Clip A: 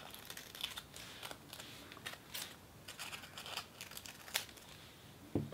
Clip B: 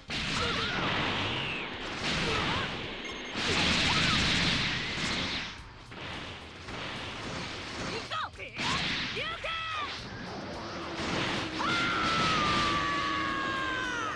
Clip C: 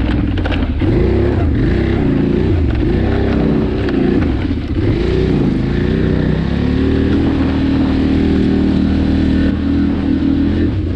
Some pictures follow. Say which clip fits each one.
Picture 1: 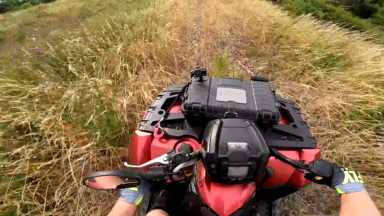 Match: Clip C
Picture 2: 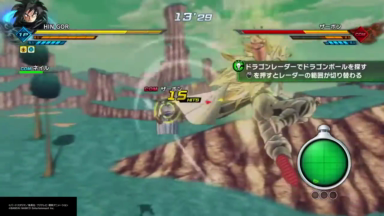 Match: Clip B